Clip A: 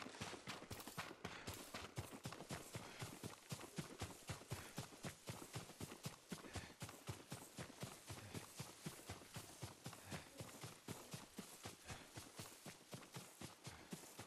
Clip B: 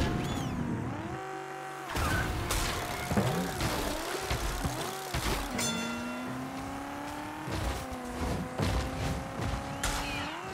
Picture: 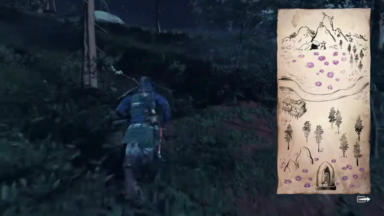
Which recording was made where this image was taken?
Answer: A